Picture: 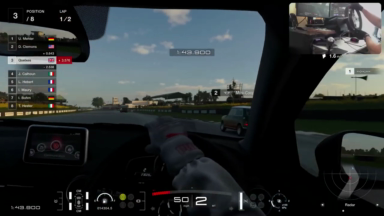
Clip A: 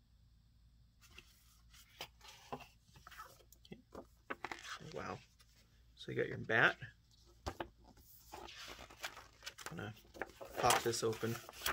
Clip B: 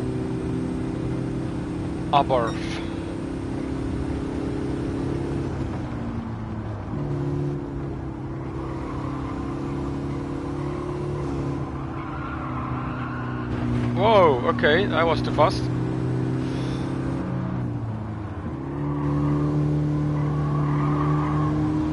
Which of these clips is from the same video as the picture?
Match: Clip B